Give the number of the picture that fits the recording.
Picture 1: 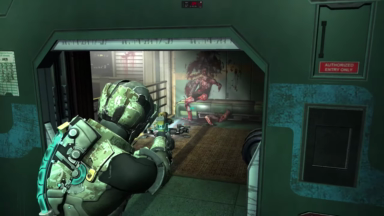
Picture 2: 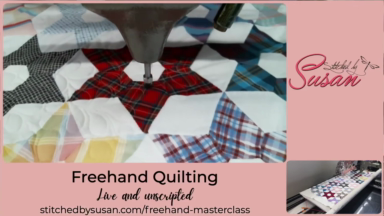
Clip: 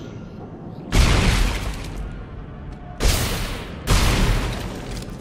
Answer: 1